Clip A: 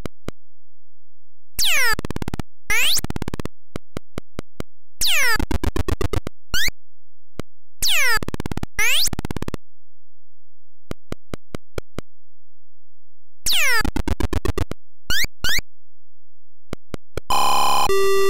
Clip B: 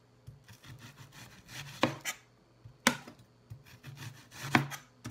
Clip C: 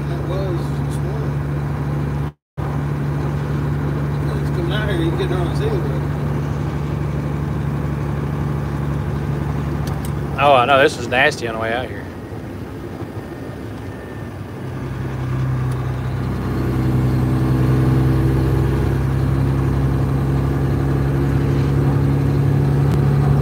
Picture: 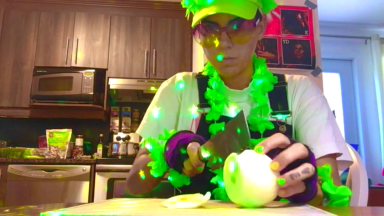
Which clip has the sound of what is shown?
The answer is B